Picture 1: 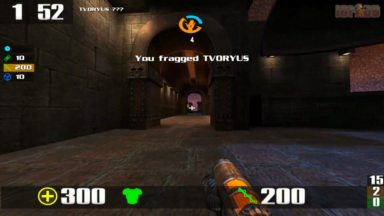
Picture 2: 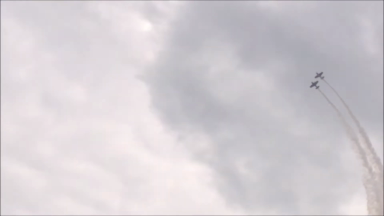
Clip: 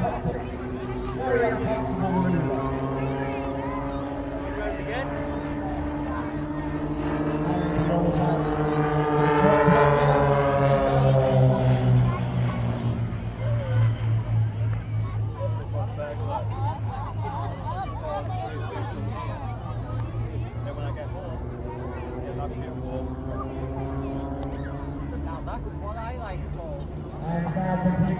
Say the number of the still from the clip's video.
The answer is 2